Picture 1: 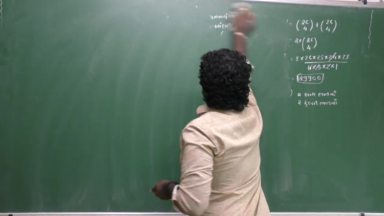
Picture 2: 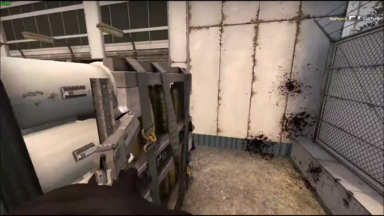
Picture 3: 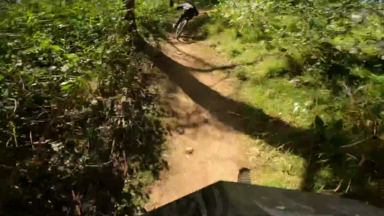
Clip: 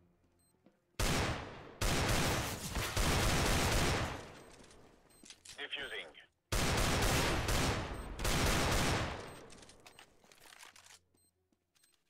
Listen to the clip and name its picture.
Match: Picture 2